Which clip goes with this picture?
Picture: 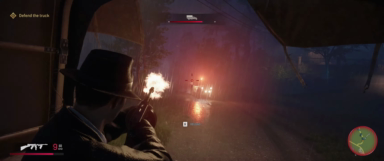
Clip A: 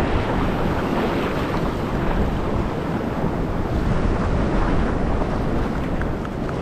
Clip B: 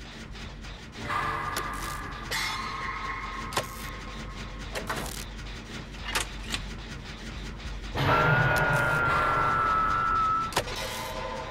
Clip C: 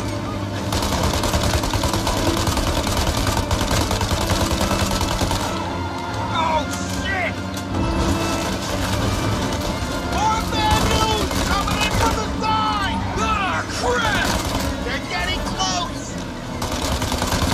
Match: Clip C